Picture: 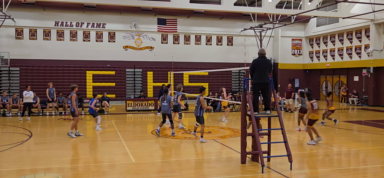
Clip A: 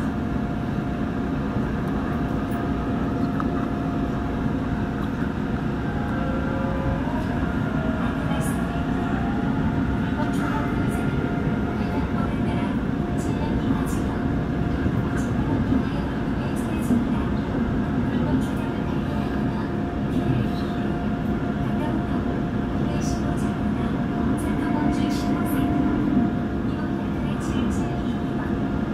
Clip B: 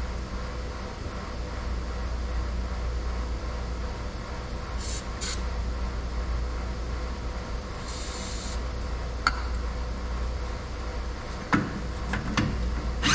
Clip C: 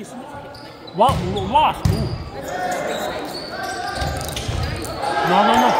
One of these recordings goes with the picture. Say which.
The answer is C